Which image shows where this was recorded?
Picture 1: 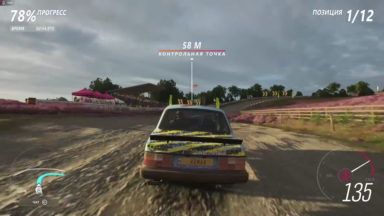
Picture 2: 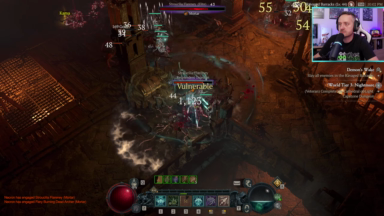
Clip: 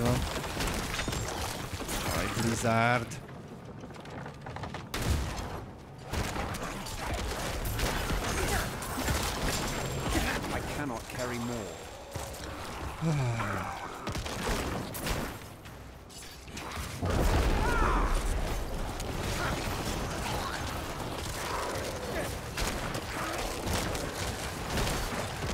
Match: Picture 2